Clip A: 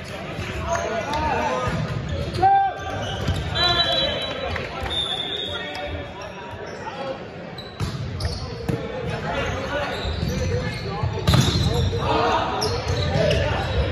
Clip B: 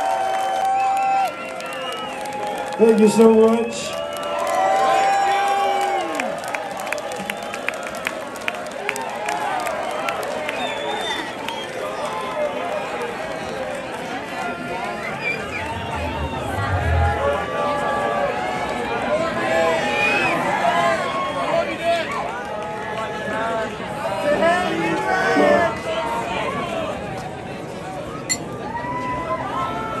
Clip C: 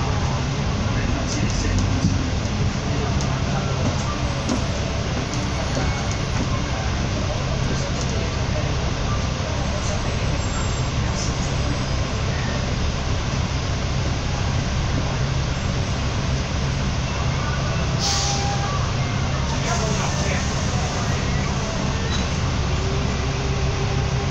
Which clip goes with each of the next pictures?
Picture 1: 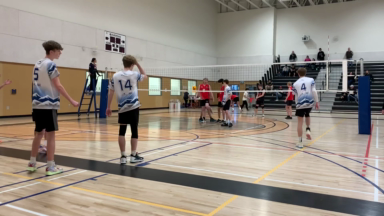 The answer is A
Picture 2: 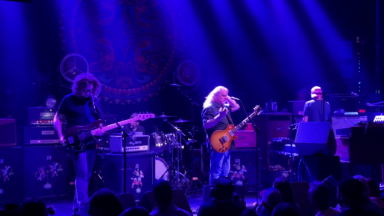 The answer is B